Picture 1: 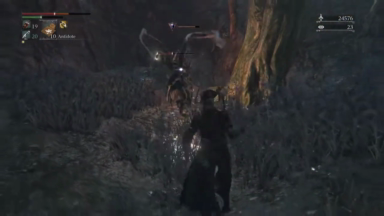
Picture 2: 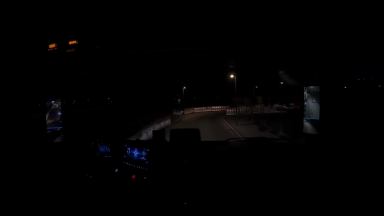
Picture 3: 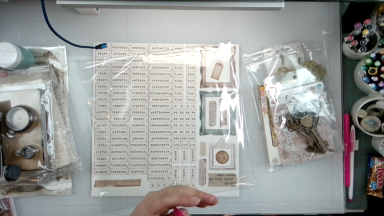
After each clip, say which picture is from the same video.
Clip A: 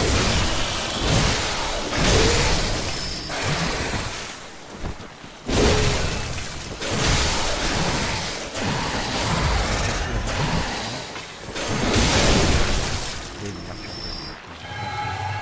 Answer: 1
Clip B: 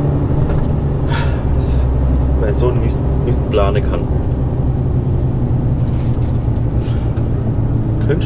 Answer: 2